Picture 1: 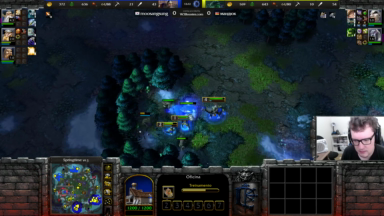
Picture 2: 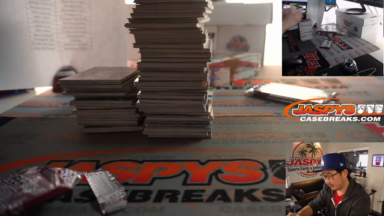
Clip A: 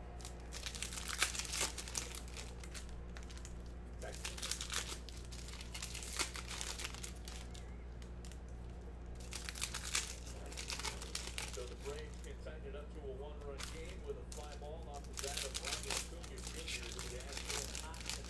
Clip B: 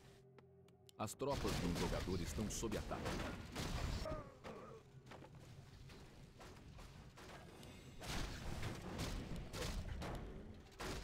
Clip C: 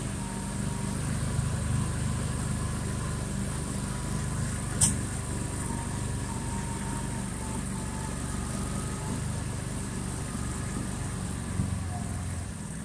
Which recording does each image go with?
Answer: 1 B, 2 A